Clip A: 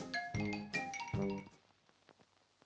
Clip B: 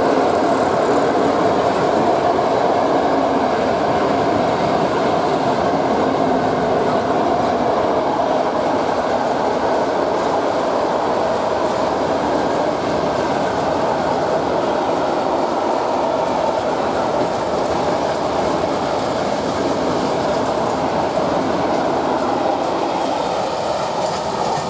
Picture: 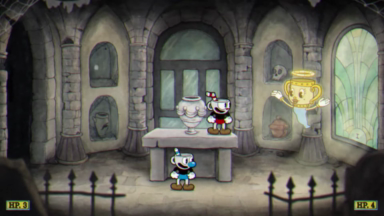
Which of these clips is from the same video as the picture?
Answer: A